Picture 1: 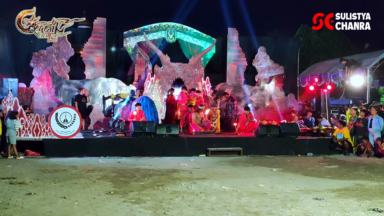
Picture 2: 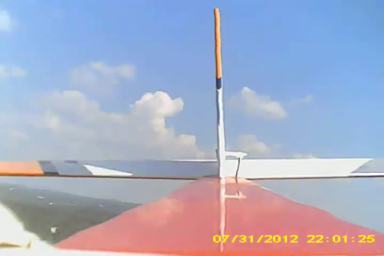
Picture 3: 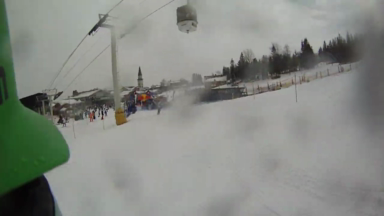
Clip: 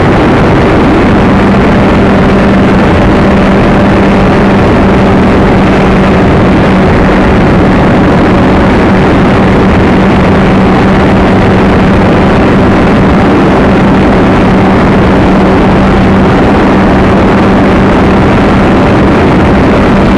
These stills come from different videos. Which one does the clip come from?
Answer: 2